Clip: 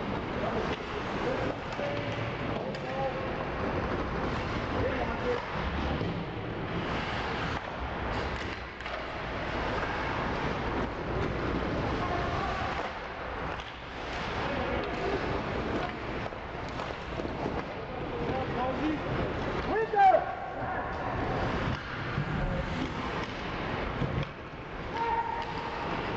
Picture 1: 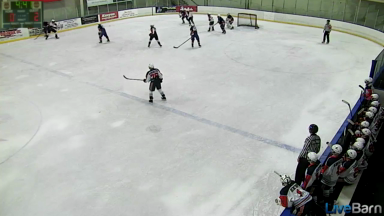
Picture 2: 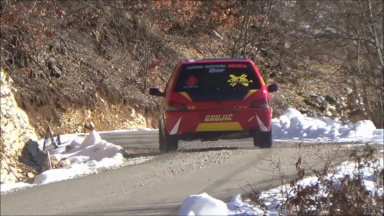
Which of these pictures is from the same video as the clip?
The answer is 1